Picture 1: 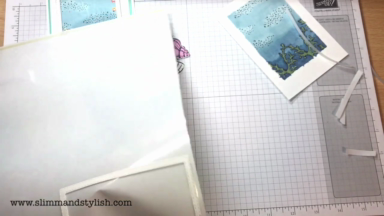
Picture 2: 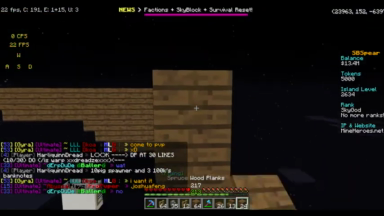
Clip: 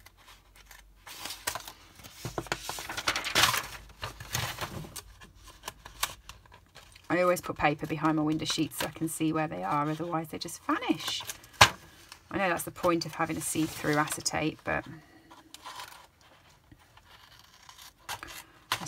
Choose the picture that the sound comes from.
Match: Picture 1